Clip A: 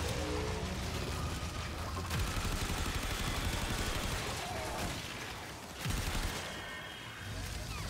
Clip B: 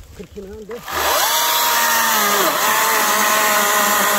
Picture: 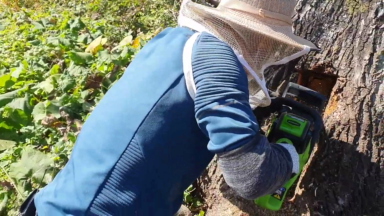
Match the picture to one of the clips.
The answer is B